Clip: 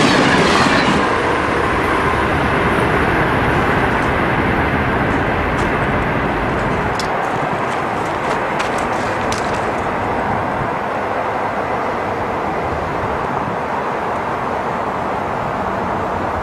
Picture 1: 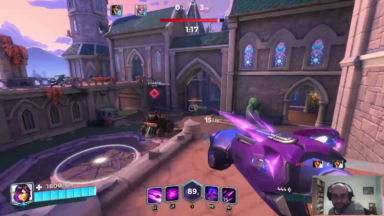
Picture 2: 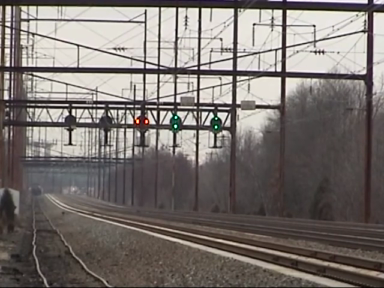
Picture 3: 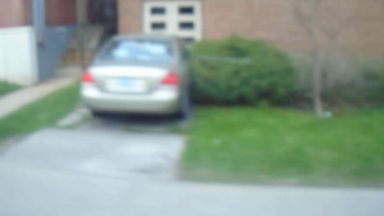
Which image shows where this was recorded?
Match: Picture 2